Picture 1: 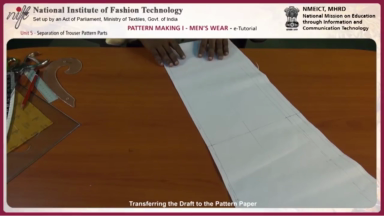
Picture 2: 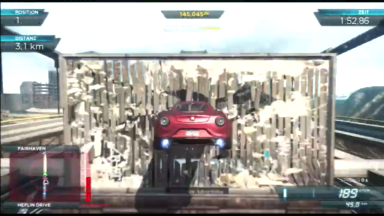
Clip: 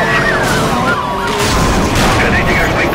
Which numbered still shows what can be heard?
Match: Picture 2